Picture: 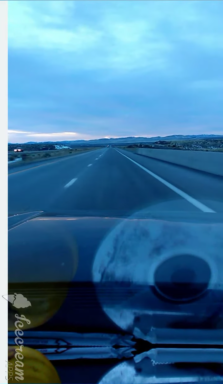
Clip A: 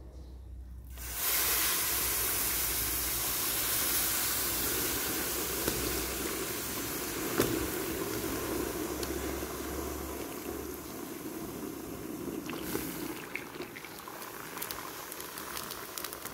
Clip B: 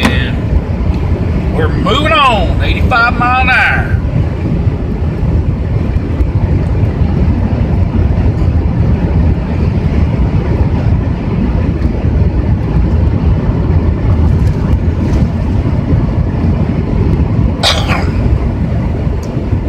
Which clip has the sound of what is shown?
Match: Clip B